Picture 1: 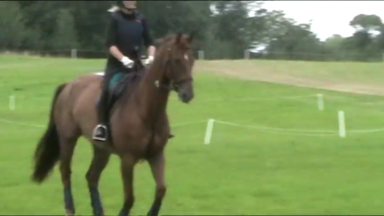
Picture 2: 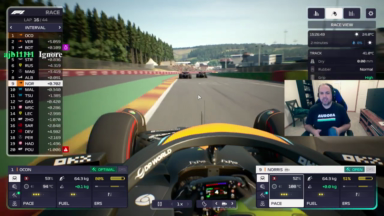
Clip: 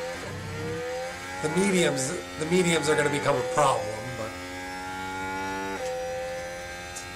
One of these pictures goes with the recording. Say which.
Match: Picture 2